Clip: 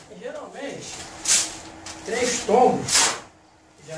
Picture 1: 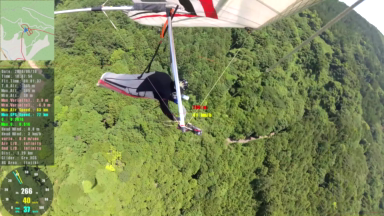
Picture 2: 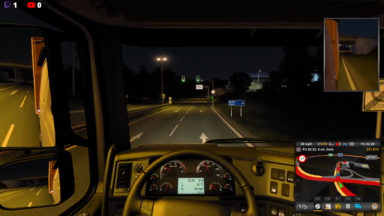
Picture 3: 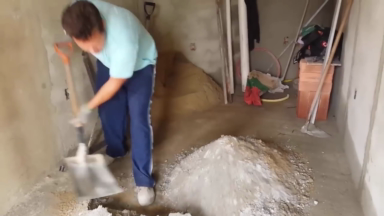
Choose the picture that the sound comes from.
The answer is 3